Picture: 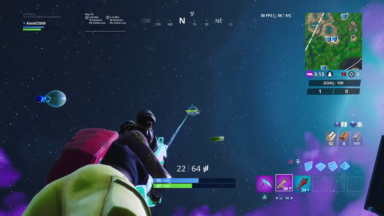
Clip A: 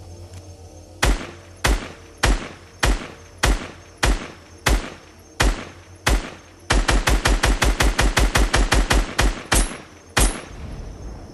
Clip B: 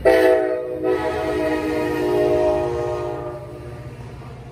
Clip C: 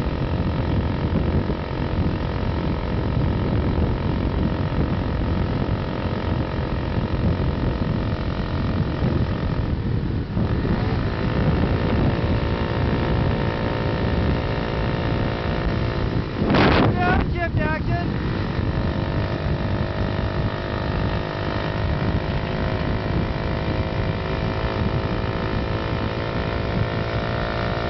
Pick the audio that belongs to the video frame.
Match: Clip A